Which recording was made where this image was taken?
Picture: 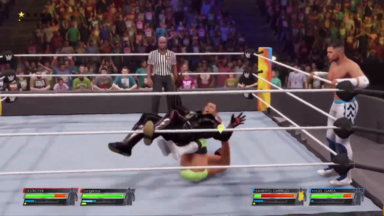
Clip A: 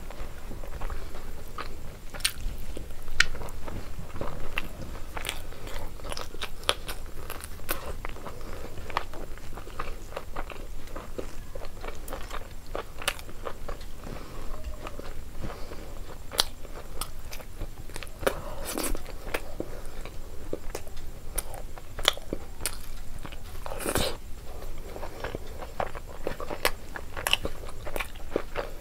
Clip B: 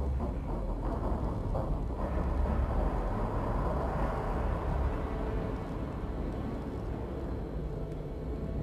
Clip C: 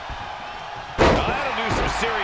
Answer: C